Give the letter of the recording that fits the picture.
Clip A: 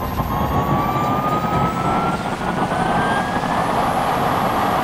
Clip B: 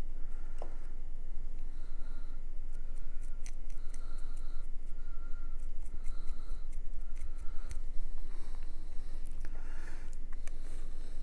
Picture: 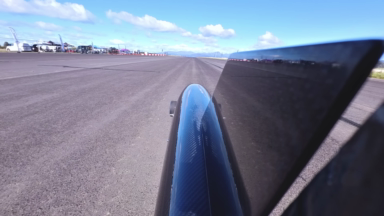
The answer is A